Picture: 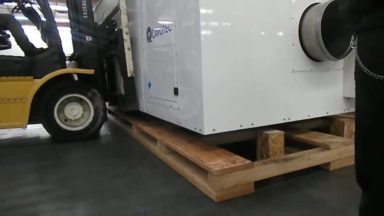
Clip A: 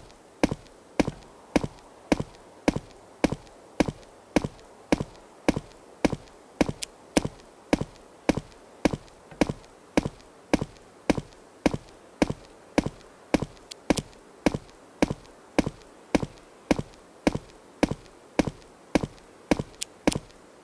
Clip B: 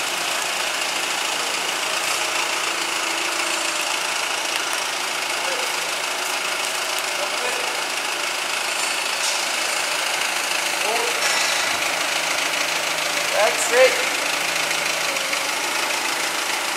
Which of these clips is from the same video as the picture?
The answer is B